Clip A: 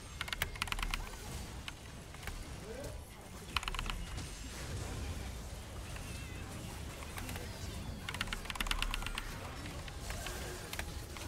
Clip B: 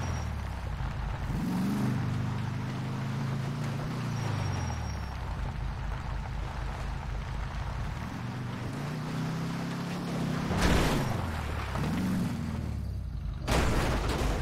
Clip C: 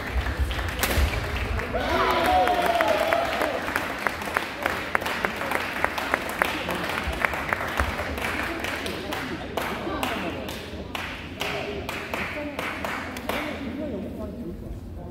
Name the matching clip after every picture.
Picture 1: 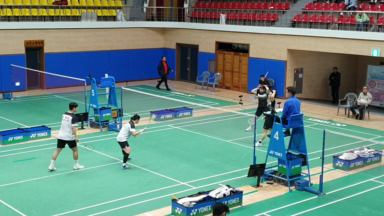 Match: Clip C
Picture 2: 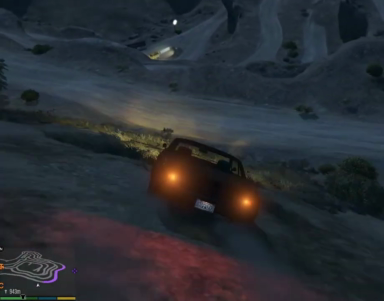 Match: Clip B